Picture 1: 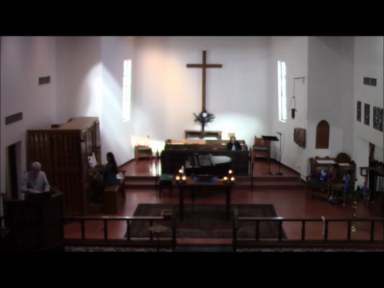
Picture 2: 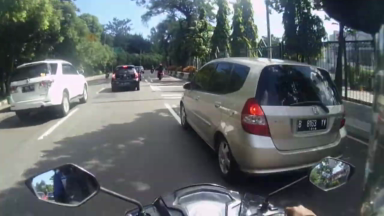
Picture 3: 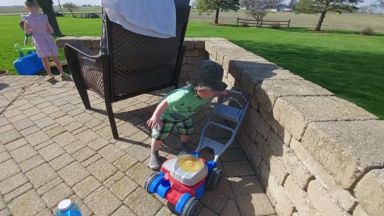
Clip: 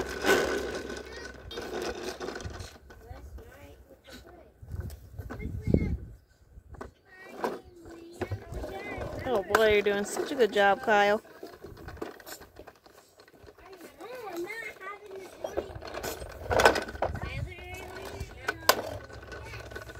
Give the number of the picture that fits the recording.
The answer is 3